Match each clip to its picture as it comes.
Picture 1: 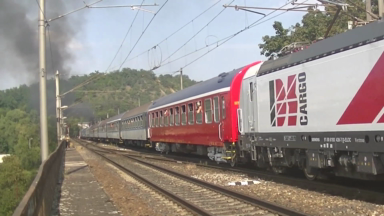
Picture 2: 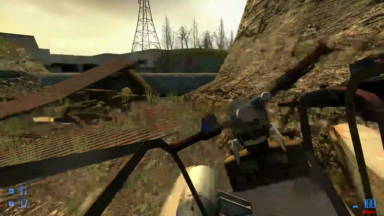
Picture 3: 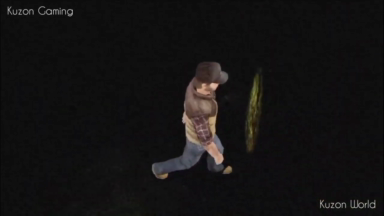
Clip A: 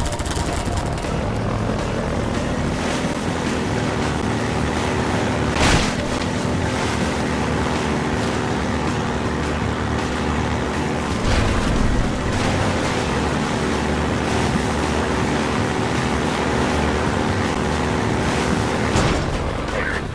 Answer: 2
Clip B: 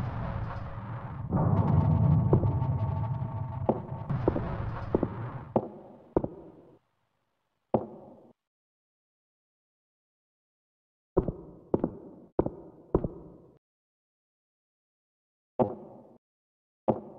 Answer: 3